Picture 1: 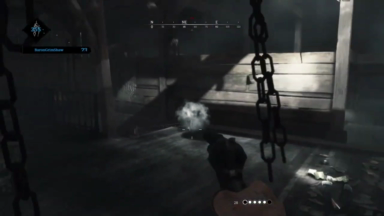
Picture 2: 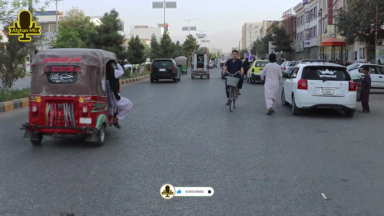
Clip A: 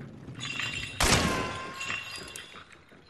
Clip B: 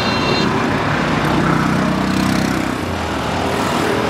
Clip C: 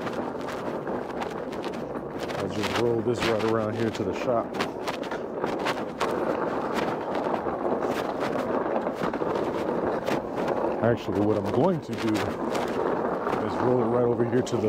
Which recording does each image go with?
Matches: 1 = A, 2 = B